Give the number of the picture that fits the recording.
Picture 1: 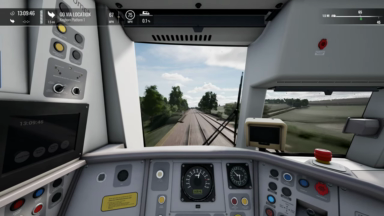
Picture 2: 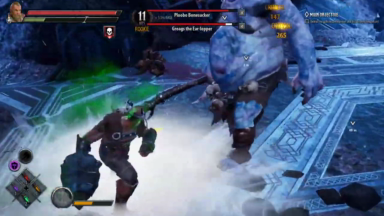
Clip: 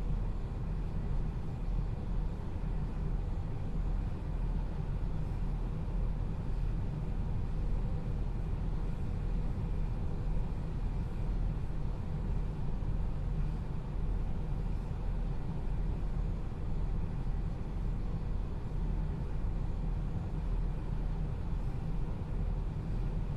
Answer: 1